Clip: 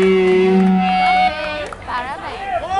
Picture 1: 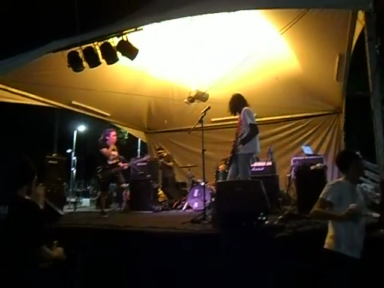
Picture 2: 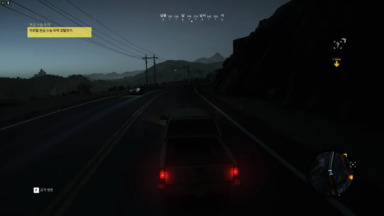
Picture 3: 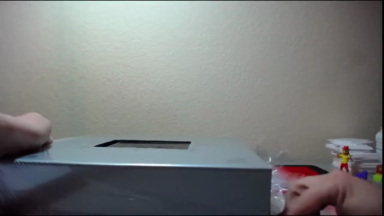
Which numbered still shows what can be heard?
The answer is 1